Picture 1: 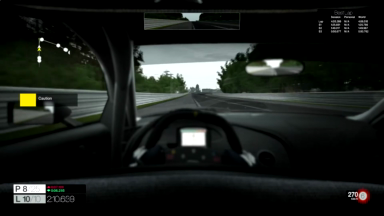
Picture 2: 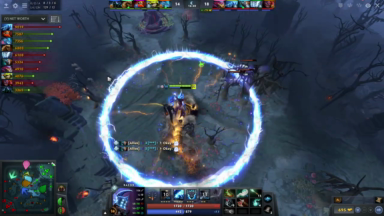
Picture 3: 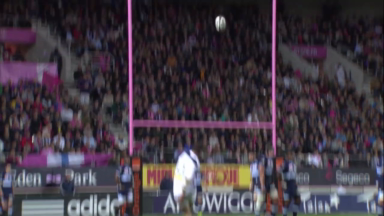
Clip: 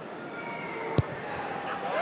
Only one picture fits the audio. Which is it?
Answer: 3